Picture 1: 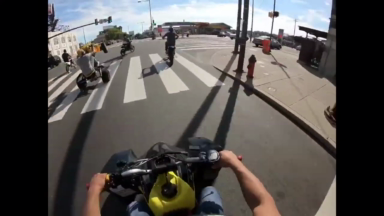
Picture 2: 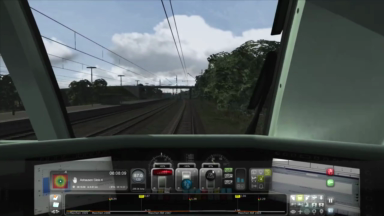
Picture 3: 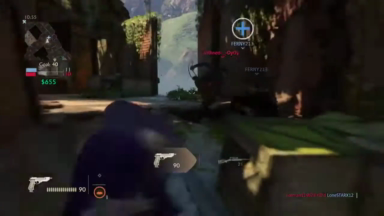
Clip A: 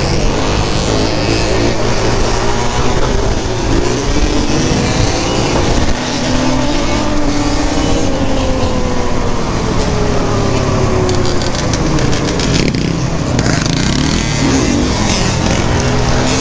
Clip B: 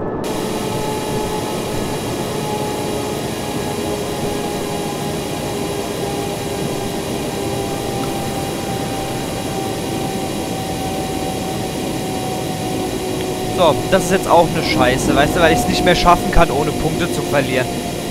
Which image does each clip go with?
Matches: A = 1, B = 2